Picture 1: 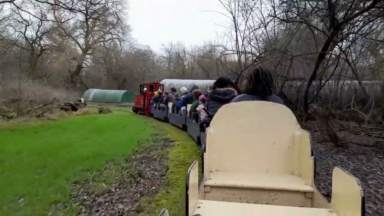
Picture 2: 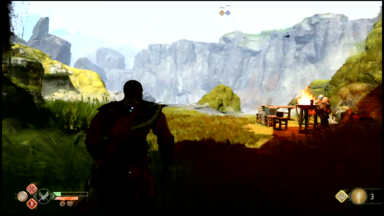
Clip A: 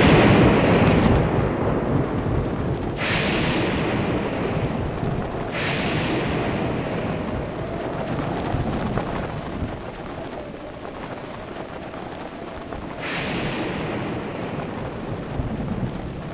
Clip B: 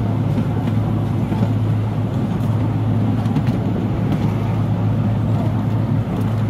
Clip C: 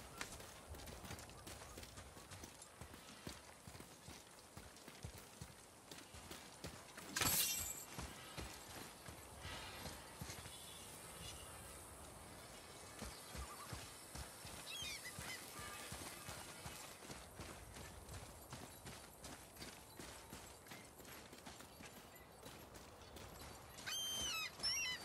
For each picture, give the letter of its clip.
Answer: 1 B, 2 C